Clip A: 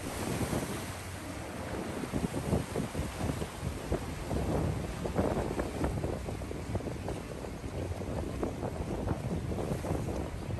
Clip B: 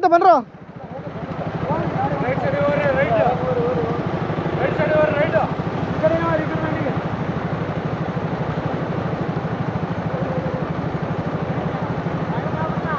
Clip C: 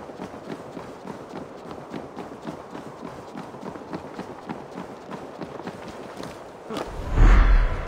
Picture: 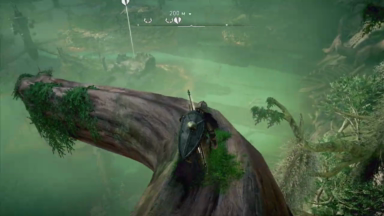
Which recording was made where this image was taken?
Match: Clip C